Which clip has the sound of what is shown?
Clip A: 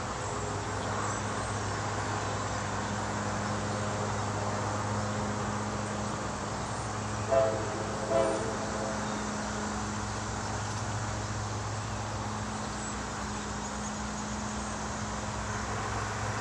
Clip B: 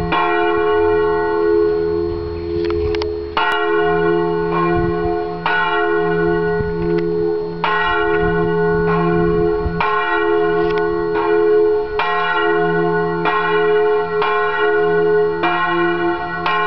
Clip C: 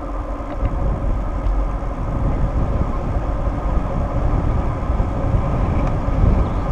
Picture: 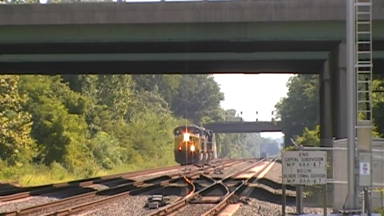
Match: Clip A